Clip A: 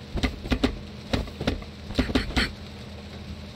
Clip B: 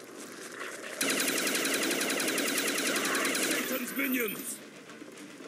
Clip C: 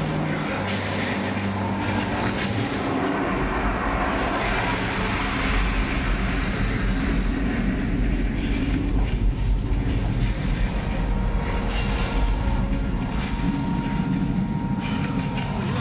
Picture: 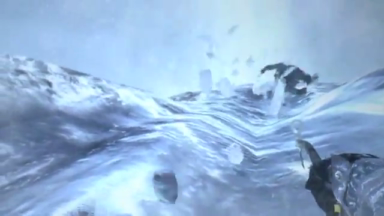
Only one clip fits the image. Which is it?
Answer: C